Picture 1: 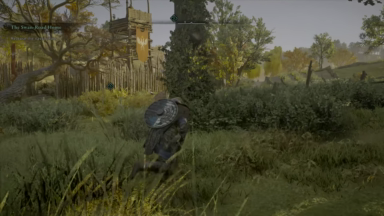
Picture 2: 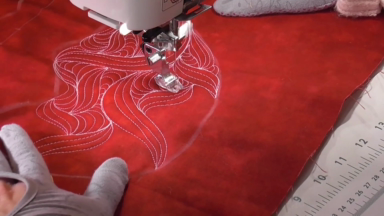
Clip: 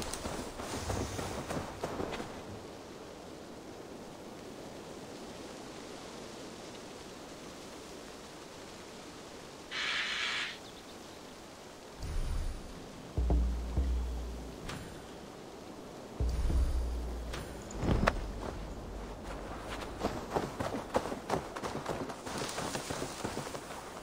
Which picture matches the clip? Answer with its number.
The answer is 1